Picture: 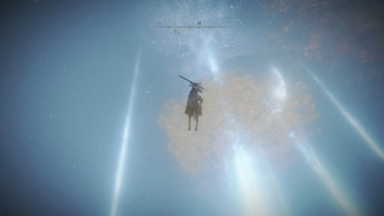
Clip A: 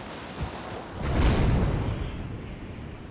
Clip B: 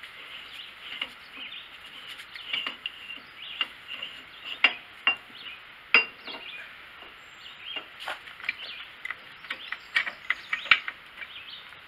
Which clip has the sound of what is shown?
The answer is A